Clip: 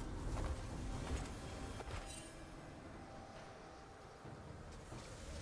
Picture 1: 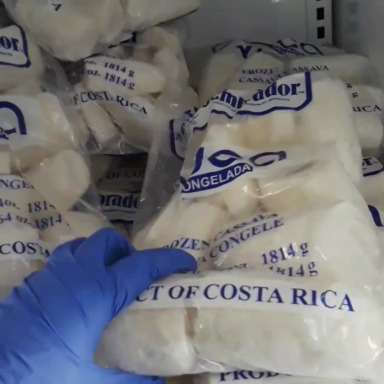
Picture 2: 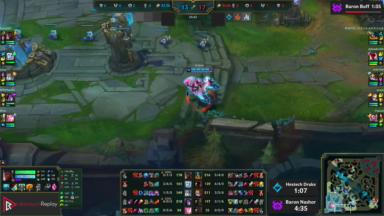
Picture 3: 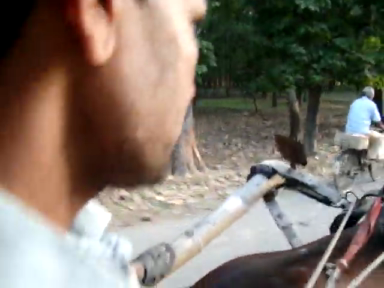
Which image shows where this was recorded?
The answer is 2